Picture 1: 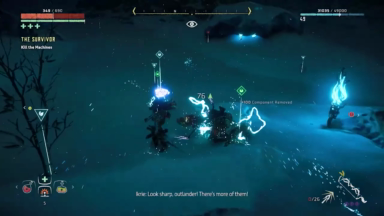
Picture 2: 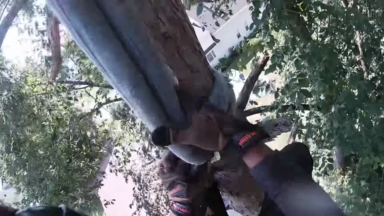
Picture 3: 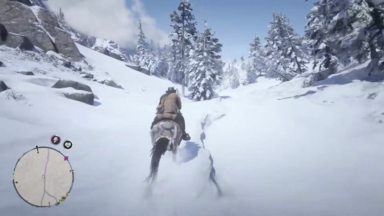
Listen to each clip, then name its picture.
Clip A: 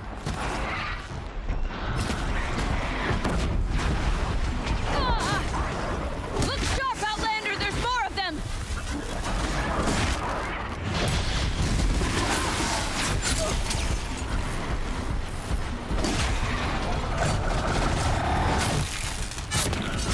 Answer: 1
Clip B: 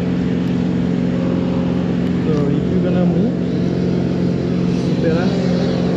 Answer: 2